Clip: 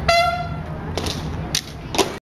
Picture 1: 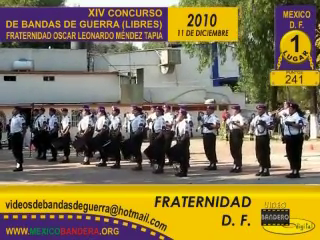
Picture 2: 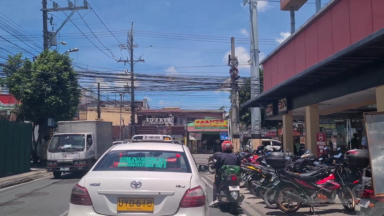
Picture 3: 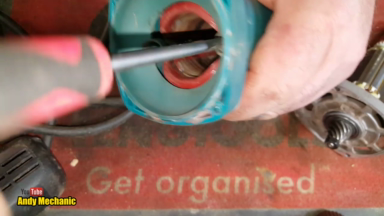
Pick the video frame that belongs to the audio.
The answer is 1